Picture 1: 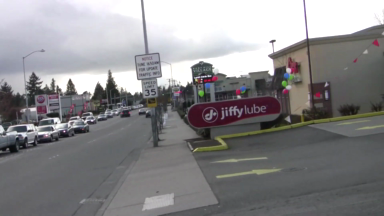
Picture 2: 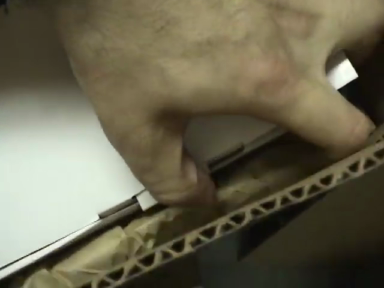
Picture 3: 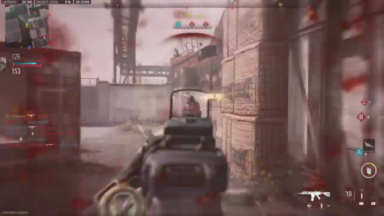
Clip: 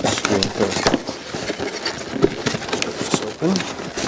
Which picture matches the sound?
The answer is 2